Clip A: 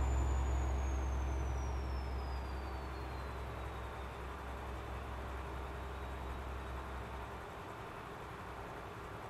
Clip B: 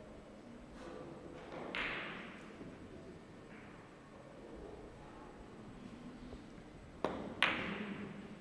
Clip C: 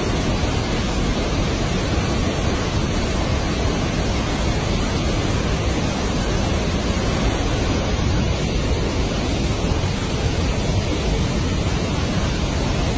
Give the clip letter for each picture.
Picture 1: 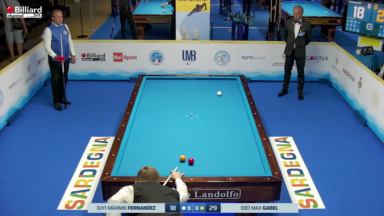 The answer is B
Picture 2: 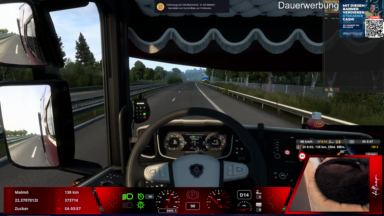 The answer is A